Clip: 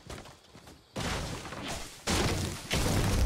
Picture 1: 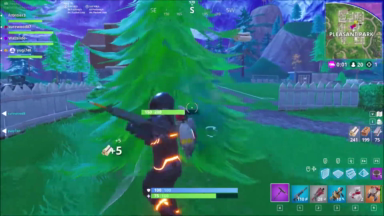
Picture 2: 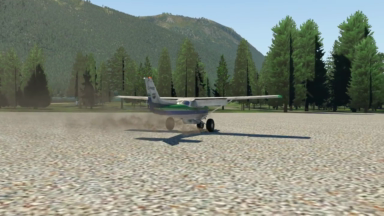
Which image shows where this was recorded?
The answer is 1